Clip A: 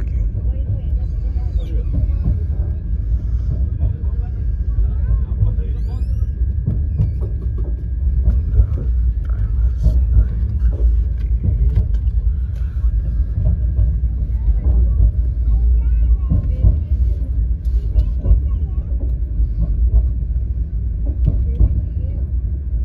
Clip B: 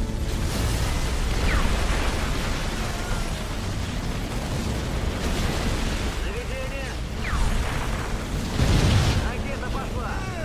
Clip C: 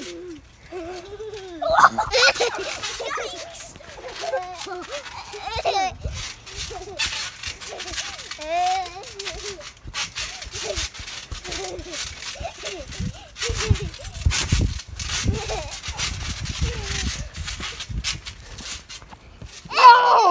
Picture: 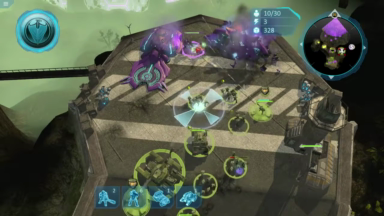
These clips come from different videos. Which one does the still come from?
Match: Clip B